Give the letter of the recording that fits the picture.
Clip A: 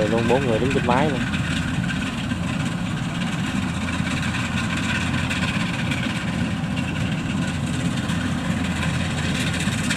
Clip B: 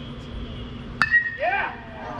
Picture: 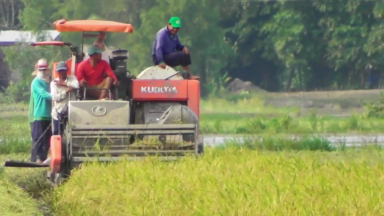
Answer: A